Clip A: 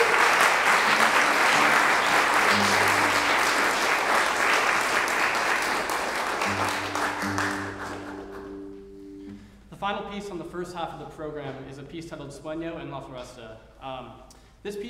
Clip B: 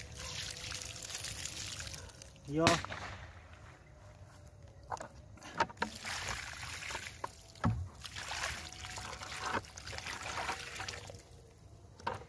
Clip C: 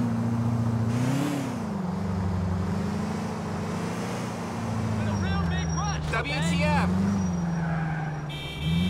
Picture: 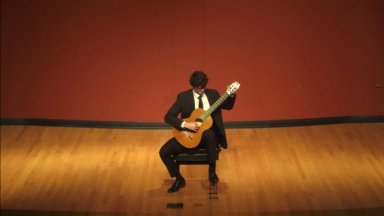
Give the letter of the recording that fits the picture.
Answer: A